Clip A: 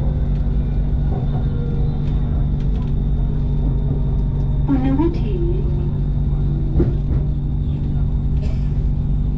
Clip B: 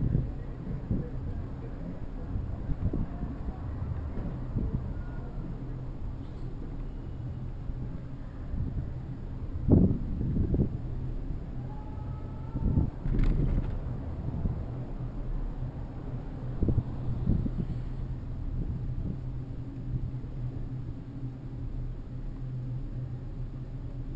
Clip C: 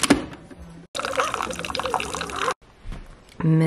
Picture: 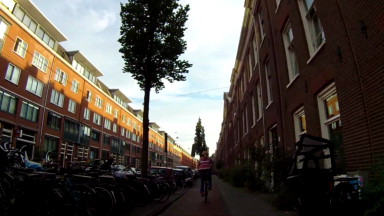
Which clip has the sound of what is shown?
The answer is B